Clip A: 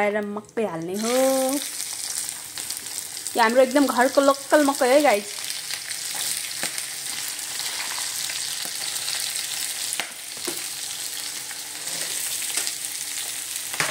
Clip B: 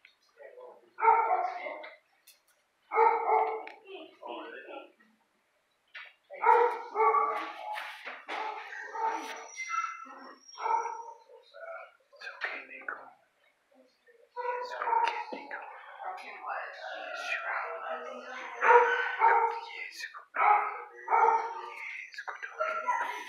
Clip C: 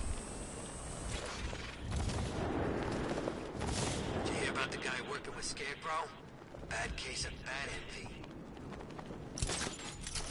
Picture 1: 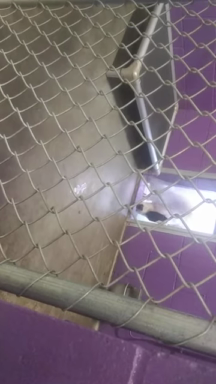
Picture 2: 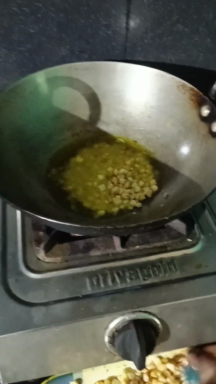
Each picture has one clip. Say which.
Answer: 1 B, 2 A